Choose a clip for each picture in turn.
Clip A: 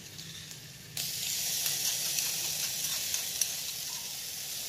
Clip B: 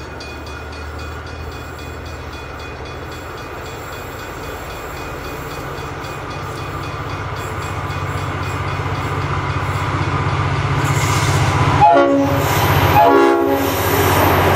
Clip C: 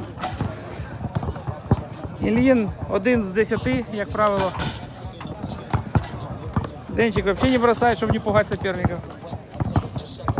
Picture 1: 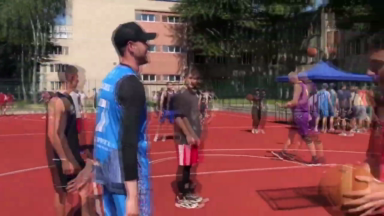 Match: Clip C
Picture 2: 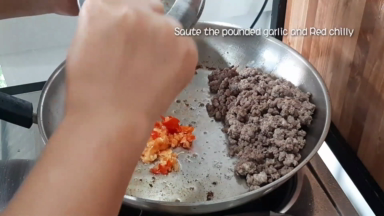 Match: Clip A